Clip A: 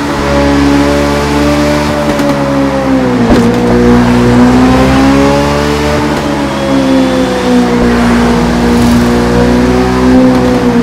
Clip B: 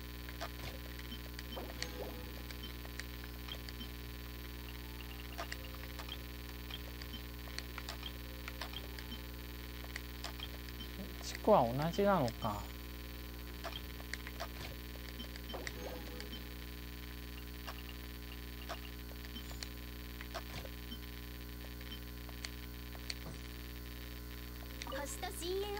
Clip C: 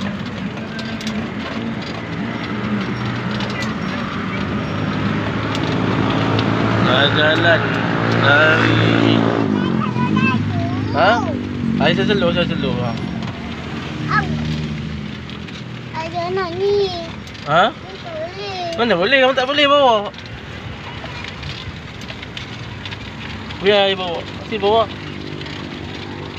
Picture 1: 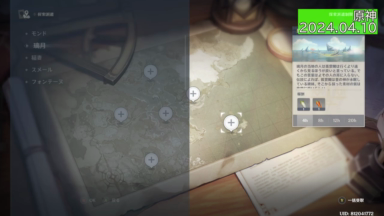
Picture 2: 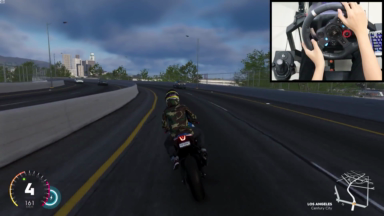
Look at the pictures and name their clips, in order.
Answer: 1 B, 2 A